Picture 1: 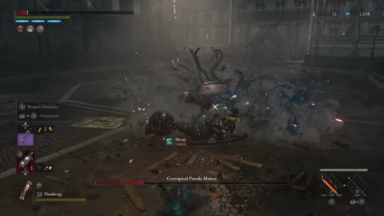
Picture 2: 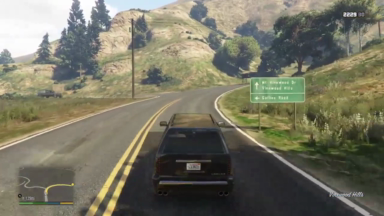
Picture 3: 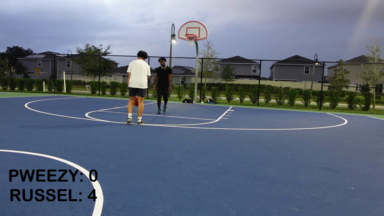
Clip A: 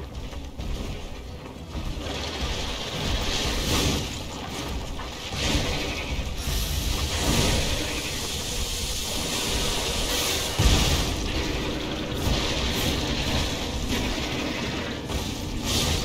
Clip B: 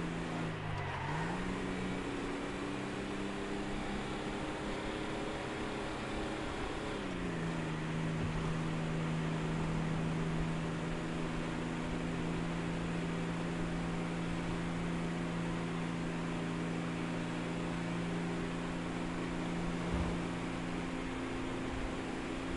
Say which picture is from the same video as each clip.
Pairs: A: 1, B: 2